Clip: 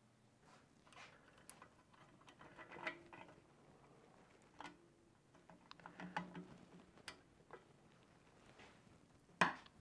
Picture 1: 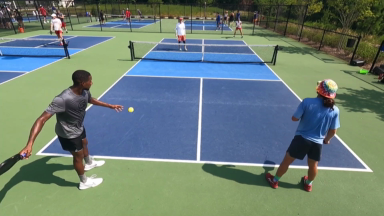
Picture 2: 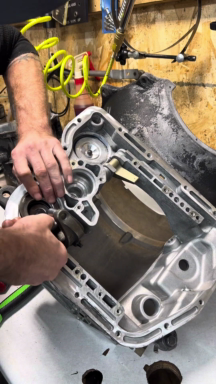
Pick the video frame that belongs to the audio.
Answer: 2